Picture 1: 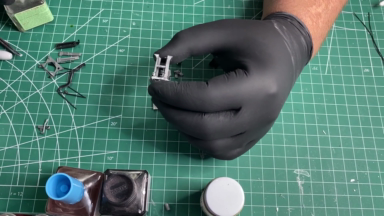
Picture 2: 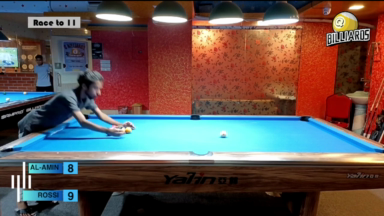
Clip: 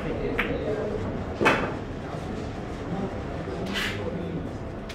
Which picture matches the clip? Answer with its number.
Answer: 2